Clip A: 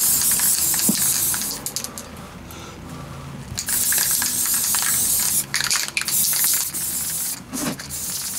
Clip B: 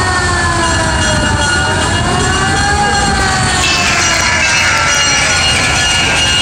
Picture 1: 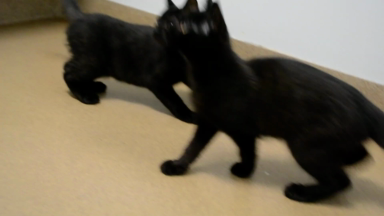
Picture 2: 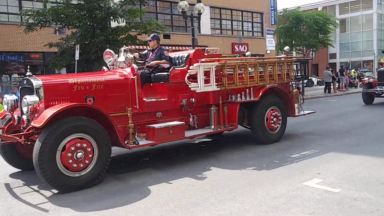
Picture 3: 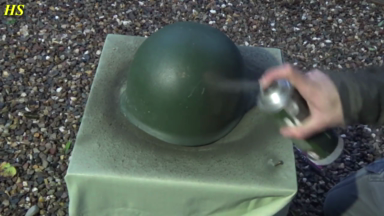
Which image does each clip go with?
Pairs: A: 3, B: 2